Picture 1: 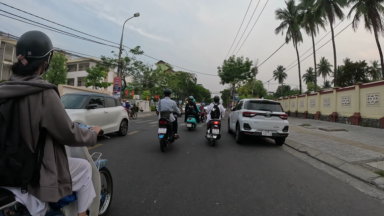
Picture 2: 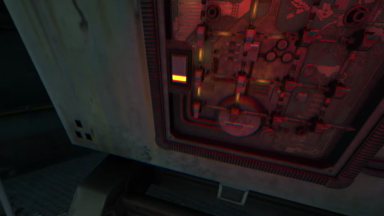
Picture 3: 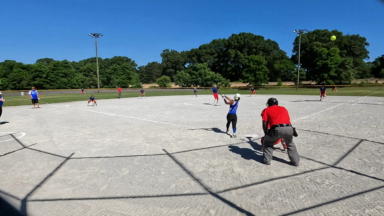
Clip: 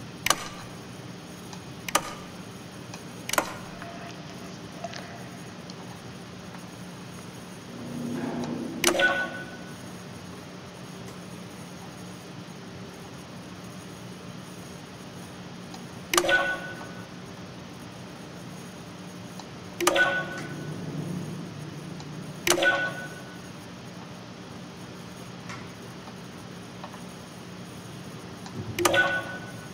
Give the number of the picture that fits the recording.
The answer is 2